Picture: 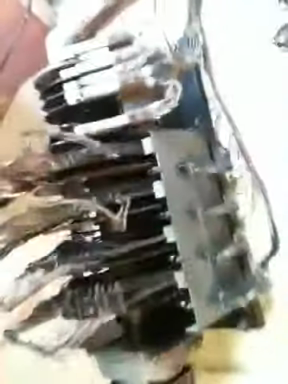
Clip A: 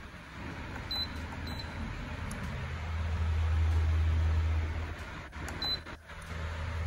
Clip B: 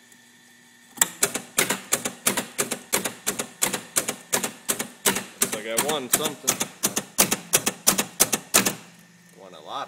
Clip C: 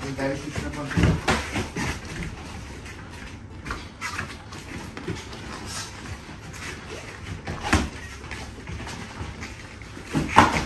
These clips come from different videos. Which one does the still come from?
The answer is B